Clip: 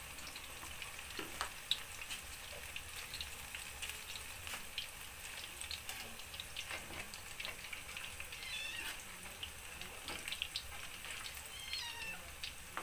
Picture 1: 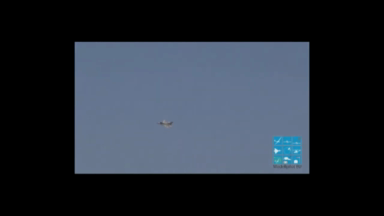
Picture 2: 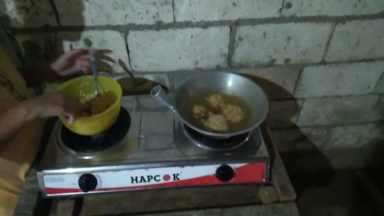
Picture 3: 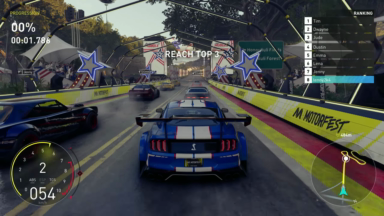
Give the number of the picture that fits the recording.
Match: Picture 2